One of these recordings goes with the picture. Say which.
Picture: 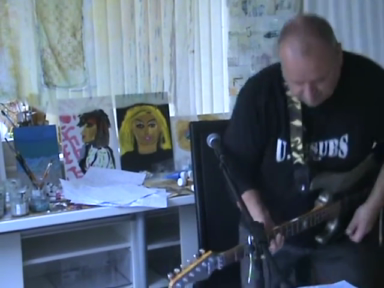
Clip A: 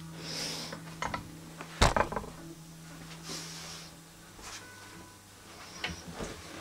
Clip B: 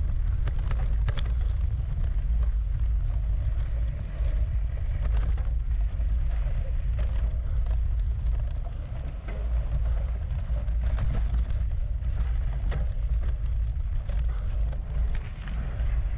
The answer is A